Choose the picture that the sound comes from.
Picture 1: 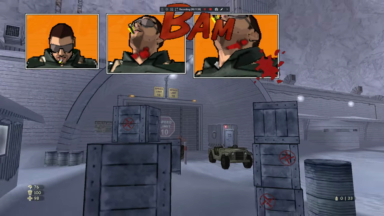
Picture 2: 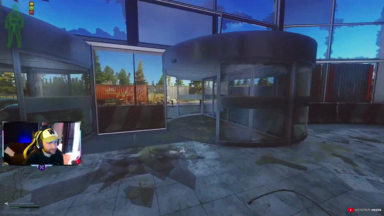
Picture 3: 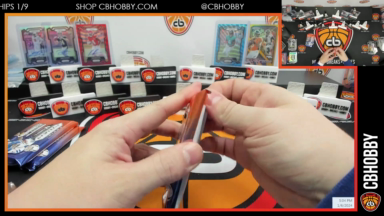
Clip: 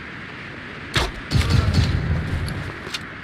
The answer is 1